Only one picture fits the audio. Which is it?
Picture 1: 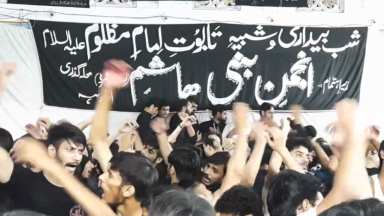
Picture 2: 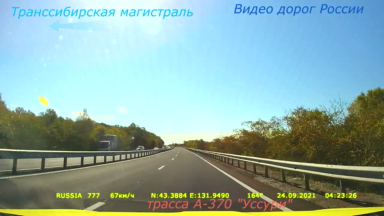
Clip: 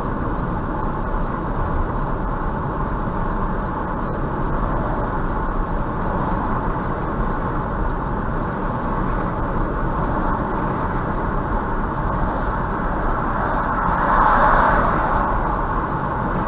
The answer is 2